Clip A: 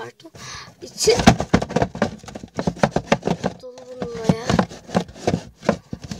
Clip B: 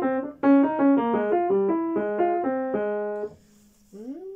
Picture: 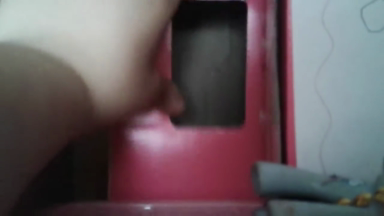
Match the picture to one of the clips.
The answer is A